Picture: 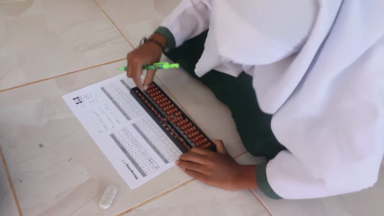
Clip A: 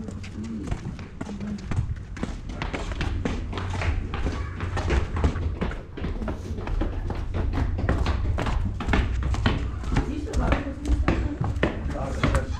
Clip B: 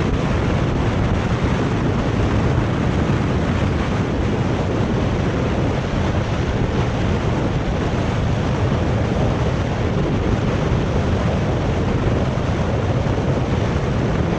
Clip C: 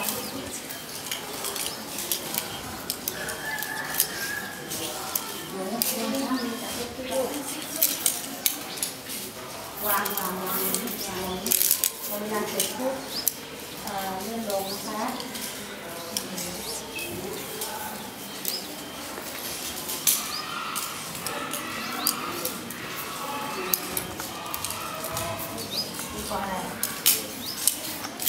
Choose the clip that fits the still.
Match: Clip C